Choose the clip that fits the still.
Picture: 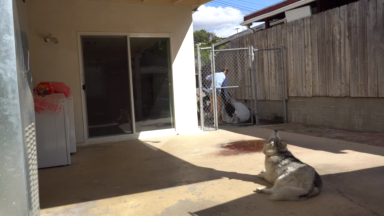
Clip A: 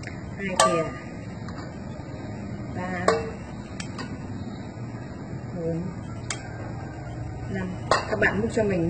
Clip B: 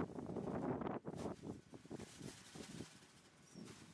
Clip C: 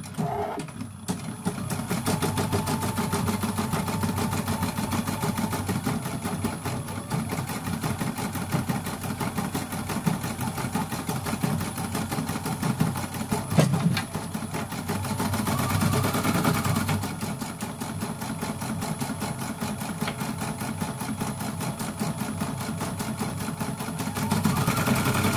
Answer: B